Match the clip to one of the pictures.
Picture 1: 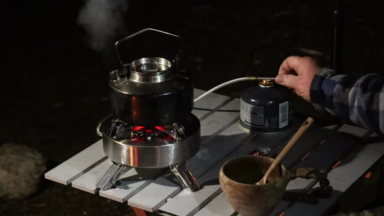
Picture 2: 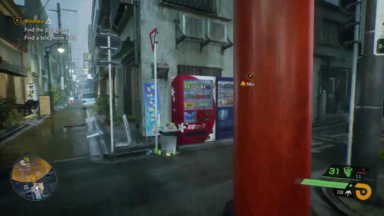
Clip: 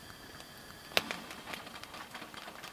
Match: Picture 1